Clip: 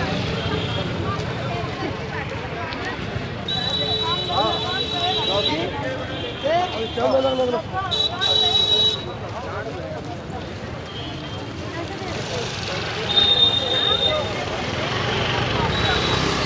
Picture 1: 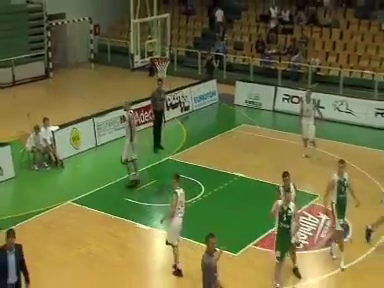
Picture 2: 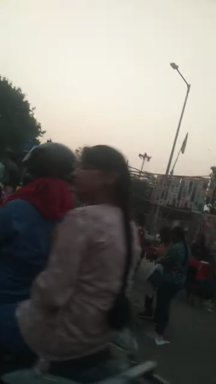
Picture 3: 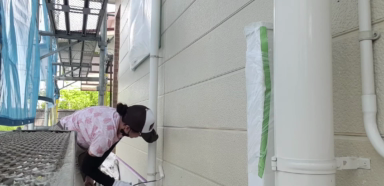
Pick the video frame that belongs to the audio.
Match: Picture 2